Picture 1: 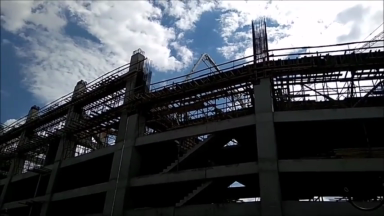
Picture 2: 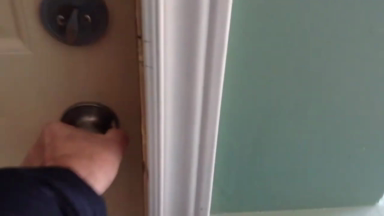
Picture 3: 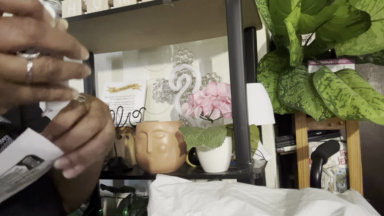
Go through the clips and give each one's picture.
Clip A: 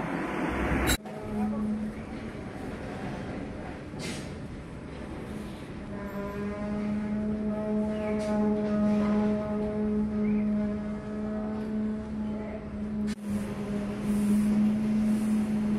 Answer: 1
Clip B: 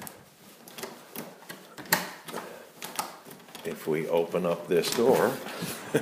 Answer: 2